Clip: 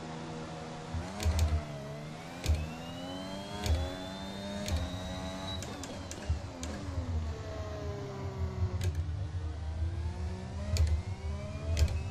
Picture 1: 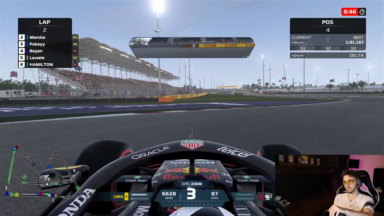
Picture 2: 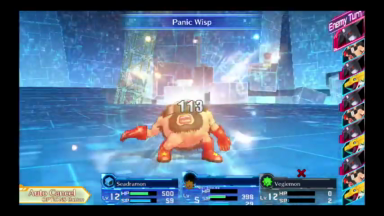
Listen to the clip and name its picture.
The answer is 1